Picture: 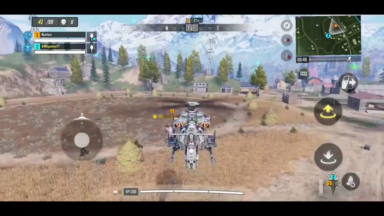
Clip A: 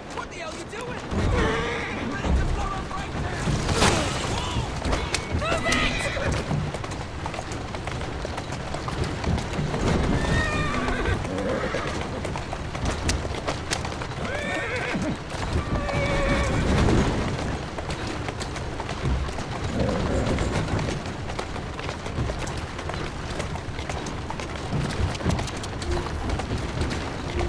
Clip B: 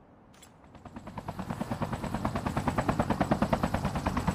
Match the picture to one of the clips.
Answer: B